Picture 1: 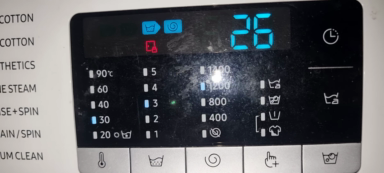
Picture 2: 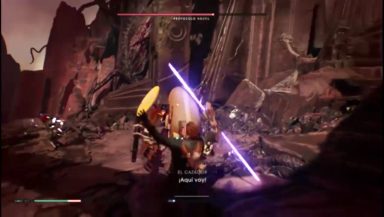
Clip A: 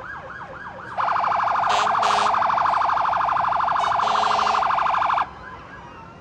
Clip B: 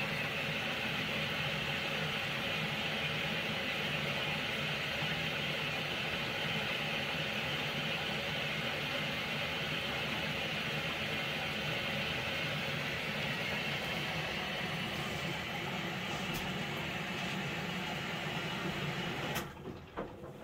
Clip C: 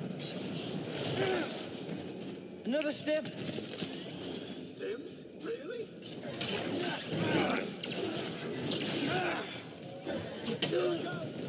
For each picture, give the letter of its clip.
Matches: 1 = B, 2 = C